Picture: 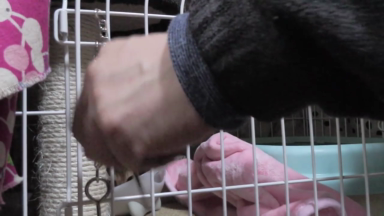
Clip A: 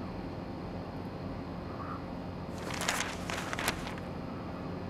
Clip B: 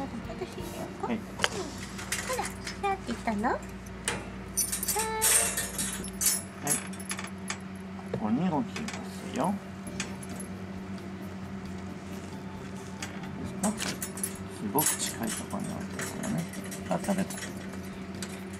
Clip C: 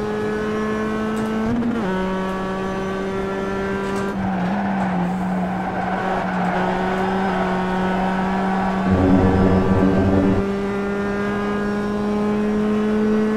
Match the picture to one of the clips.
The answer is B